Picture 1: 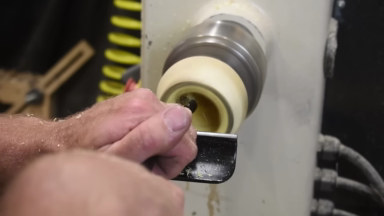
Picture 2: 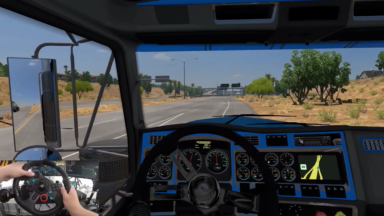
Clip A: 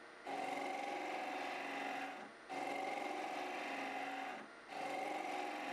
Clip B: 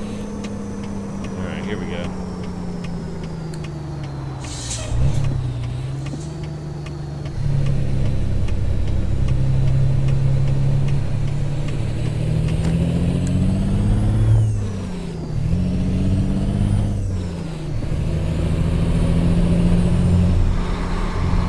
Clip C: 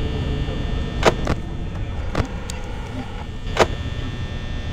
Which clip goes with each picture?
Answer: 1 A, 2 B